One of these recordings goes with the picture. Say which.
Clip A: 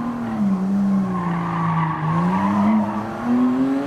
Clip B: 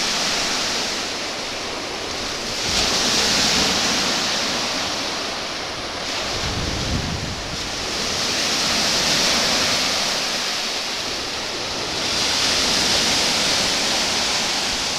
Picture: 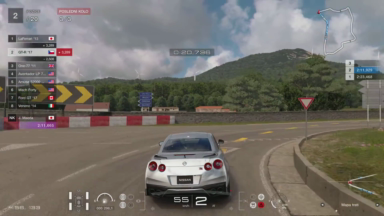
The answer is A